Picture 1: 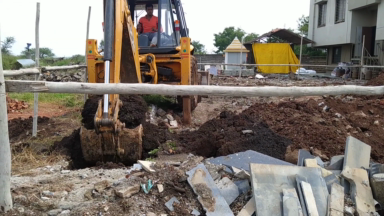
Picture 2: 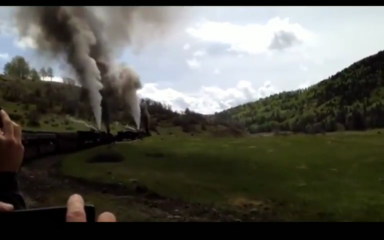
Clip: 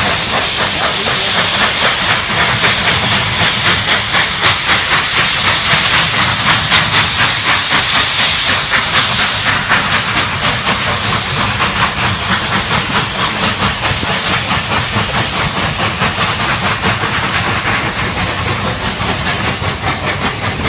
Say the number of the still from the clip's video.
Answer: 2